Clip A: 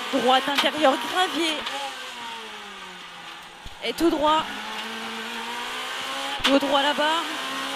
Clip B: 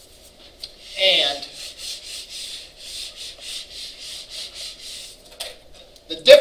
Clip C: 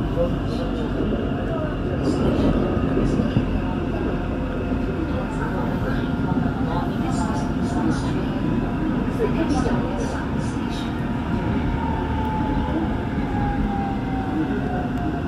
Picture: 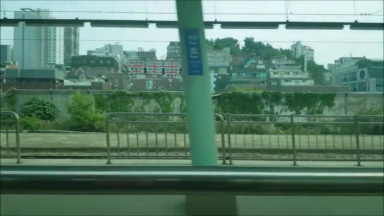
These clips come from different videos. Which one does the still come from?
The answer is C